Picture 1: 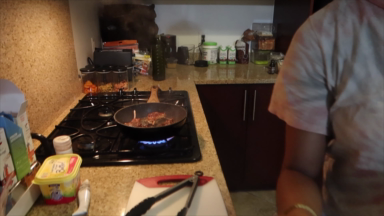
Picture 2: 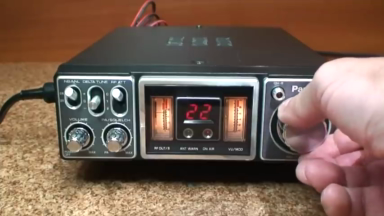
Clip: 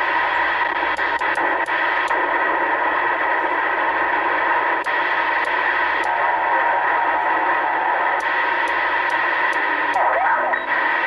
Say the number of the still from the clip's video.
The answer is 2